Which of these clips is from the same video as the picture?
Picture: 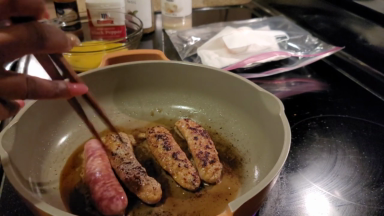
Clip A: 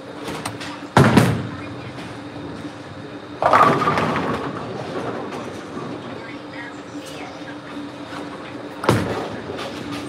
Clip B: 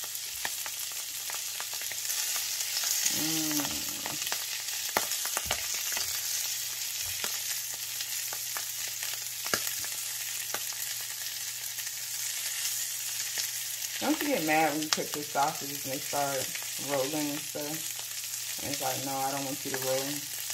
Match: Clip B